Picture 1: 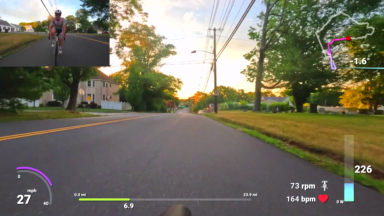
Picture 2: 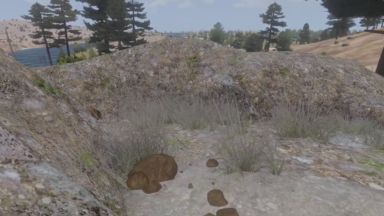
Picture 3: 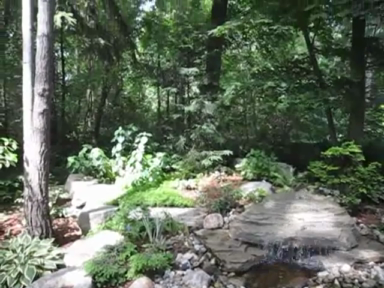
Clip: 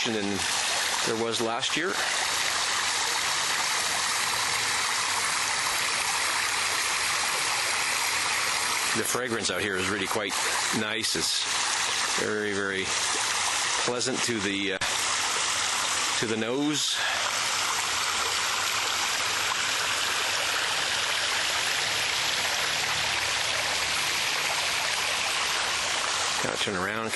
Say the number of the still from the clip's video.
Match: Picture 3